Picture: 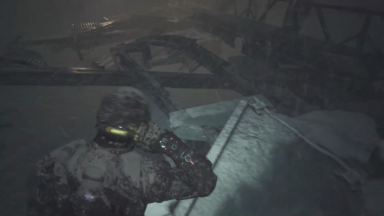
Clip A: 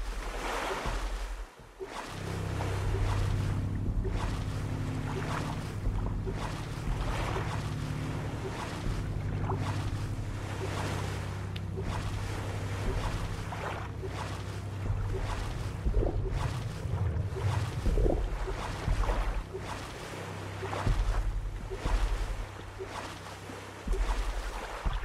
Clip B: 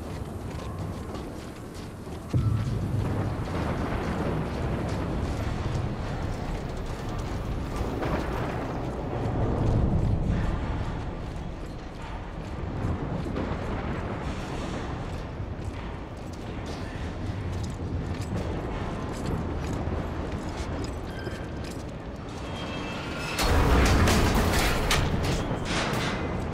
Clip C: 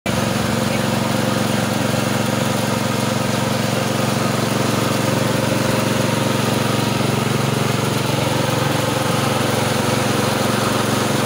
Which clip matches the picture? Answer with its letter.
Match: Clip B